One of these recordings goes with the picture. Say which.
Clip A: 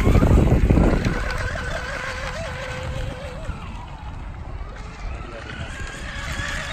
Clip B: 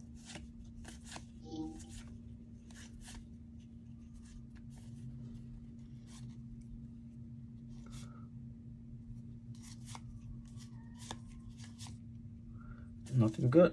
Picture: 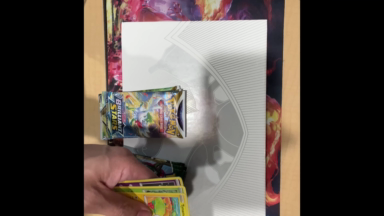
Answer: B